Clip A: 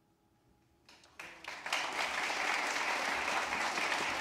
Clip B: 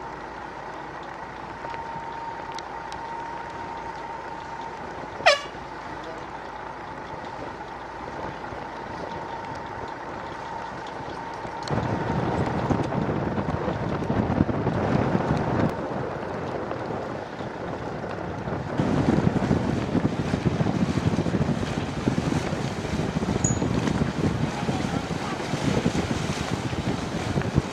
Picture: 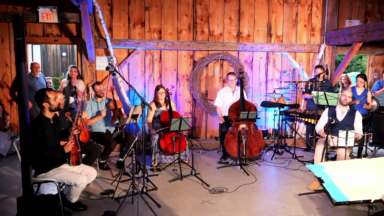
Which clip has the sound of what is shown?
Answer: A